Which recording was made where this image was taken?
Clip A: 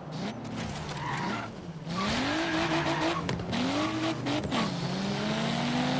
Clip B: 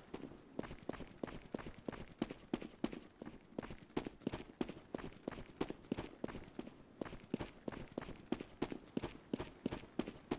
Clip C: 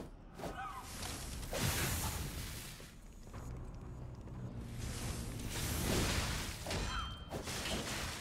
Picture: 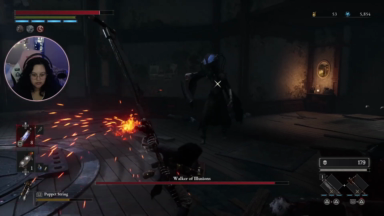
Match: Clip C